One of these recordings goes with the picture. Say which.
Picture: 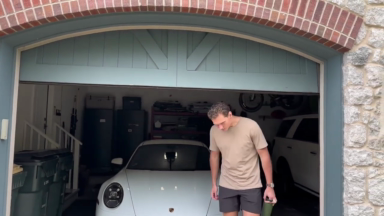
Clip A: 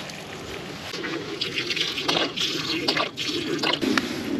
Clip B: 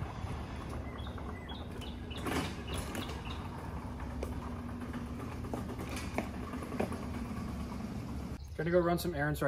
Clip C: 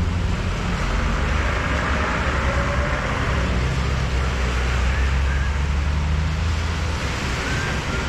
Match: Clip B